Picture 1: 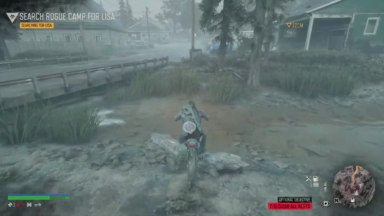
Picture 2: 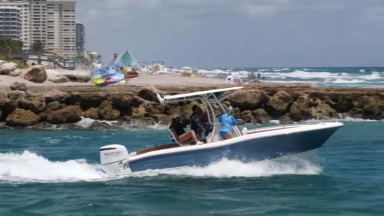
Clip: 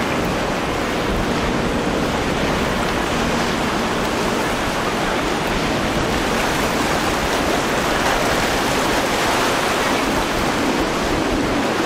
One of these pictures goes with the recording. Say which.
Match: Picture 2